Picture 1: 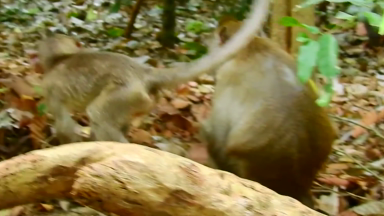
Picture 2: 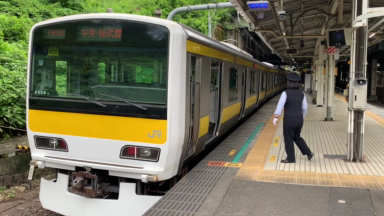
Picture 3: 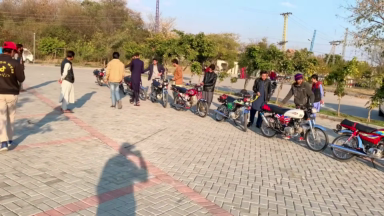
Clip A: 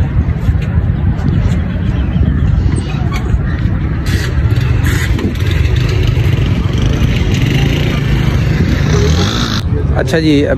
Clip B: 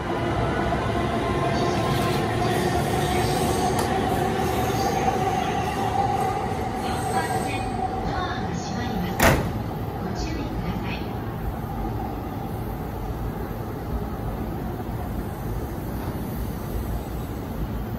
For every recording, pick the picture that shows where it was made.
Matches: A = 3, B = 2